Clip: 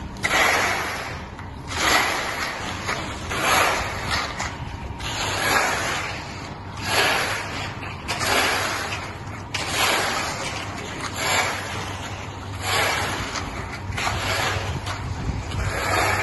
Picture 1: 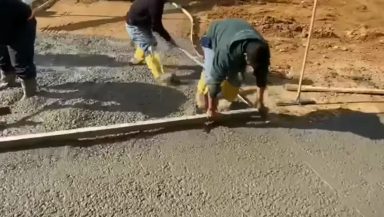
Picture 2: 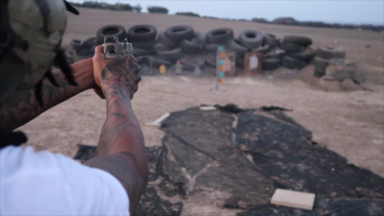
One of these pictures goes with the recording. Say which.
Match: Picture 1